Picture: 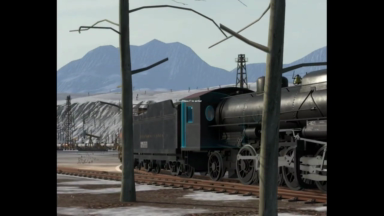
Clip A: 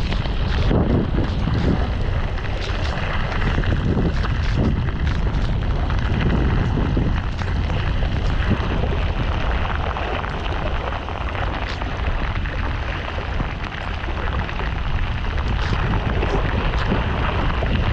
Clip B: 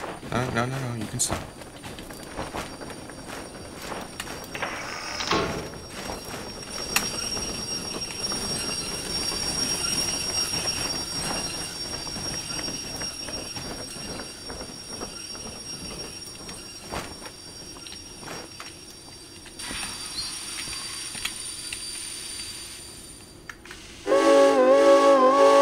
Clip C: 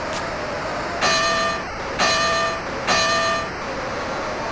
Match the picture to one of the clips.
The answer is B